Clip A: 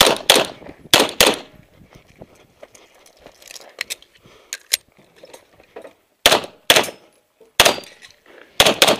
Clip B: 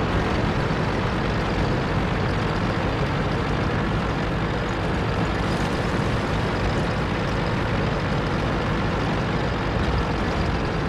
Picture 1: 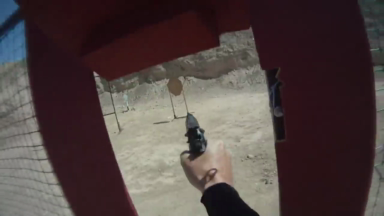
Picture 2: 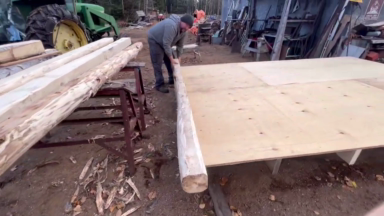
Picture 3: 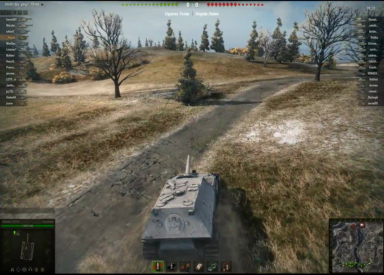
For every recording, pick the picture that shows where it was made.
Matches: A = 1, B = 3